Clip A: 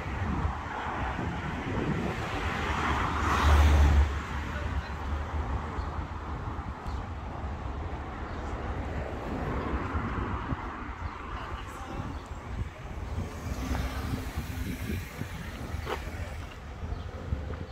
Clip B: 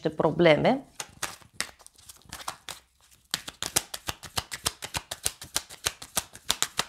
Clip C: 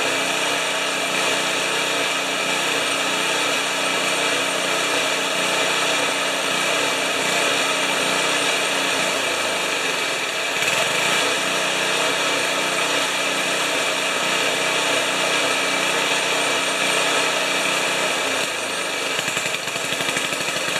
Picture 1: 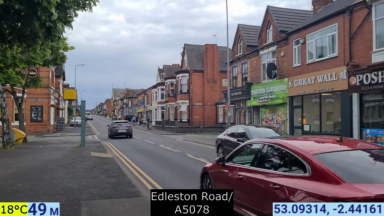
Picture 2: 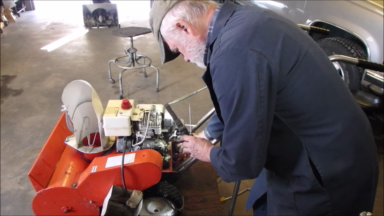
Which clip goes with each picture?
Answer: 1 A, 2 C